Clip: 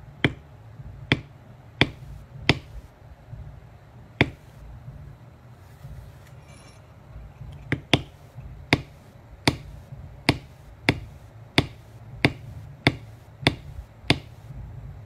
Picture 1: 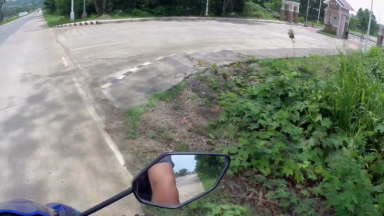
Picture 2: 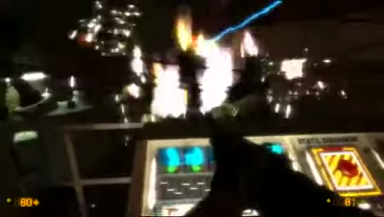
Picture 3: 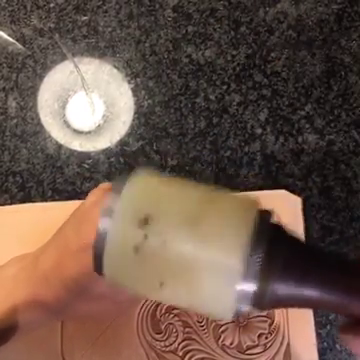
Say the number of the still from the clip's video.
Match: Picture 3